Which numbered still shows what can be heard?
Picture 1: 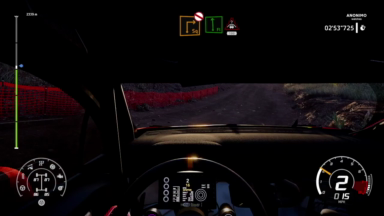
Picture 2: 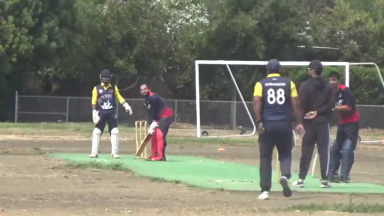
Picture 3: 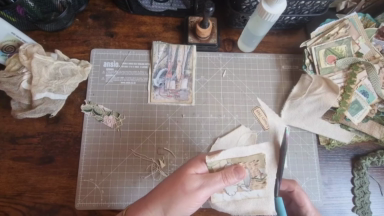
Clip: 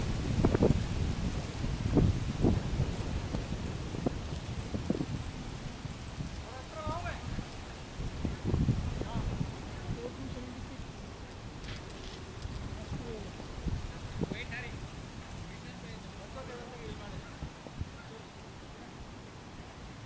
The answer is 2